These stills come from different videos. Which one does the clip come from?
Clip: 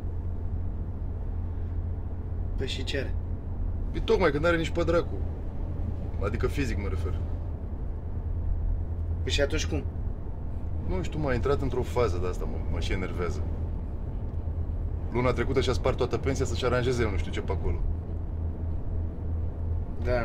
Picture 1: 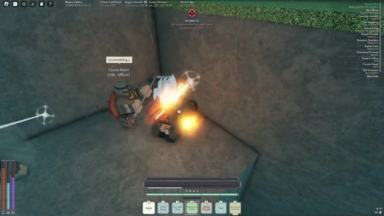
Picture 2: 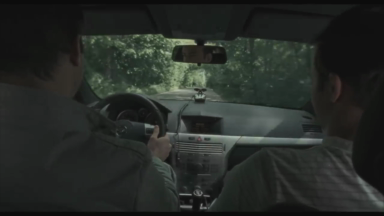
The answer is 2